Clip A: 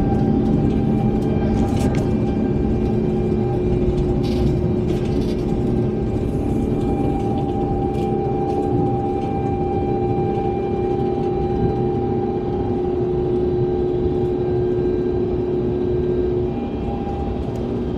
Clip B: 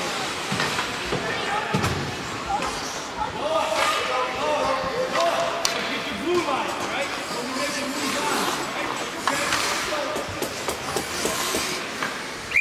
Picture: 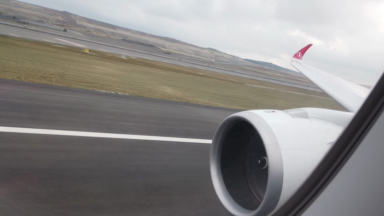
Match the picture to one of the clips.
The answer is A